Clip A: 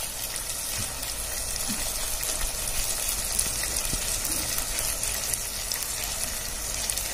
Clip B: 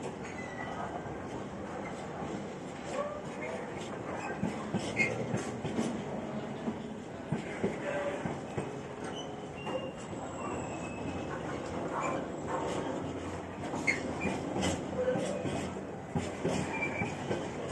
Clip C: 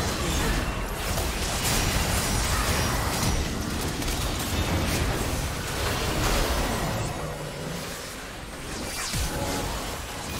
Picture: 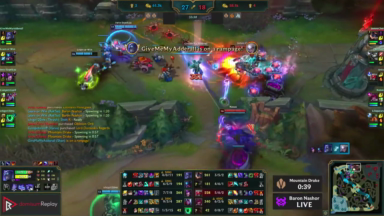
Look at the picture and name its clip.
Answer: C